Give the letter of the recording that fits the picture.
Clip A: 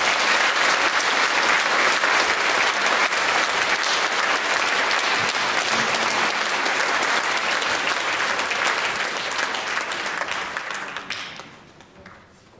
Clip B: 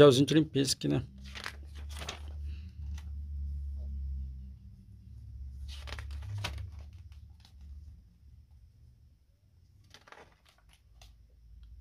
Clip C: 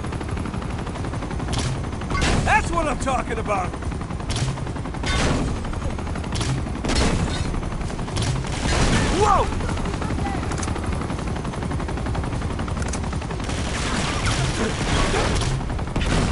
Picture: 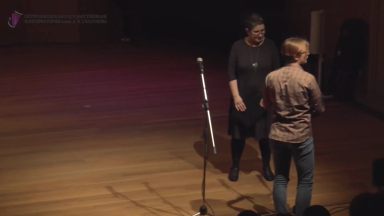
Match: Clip A